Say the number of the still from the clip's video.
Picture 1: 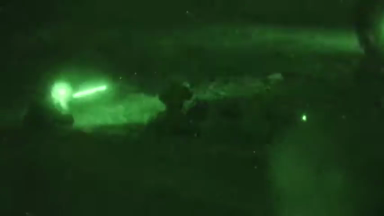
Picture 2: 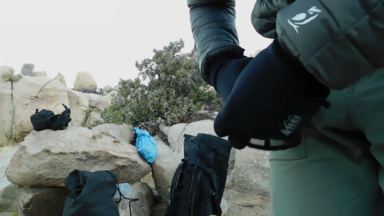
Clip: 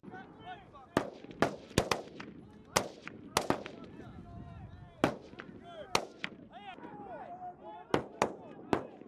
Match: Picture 1